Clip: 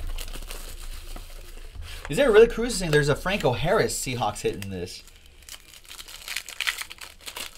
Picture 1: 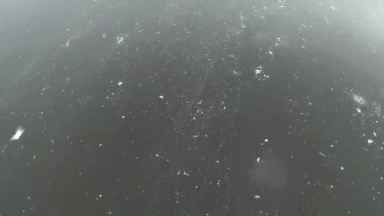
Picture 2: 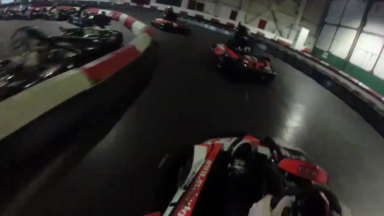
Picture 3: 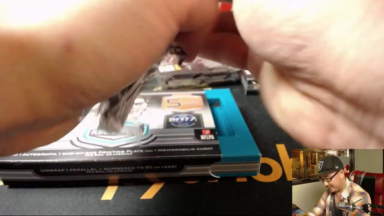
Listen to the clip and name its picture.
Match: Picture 3